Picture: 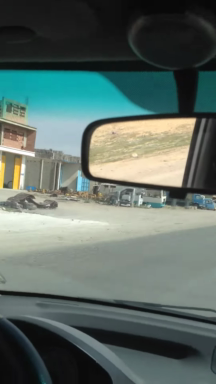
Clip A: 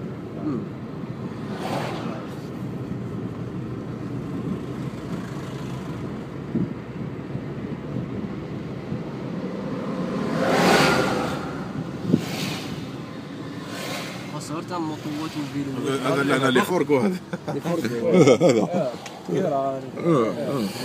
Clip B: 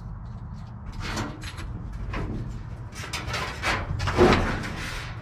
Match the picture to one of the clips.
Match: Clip A